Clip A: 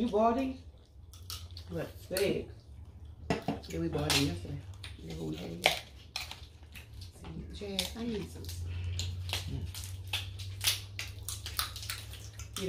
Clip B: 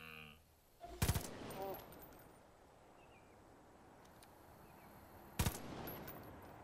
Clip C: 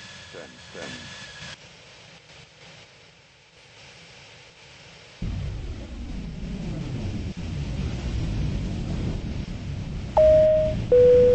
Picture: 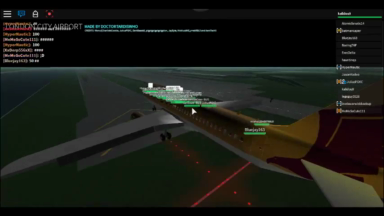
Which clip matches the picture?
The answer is C